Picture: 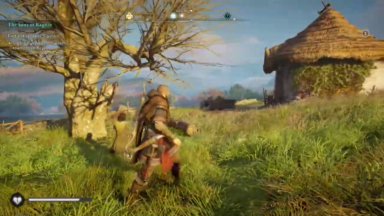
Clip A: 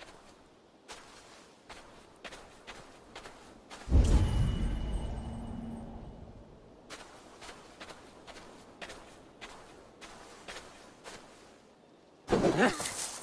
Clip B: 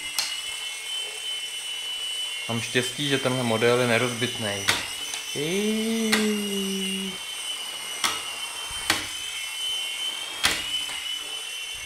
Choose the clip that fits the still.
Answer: A